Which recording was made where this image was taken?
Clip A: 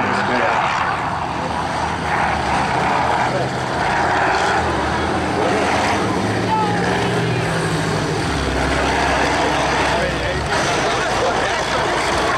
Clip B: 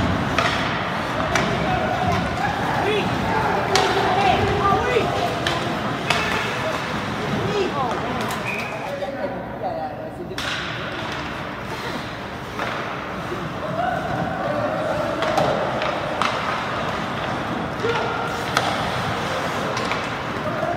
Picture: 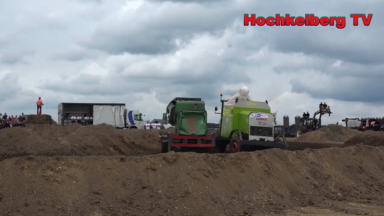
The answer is A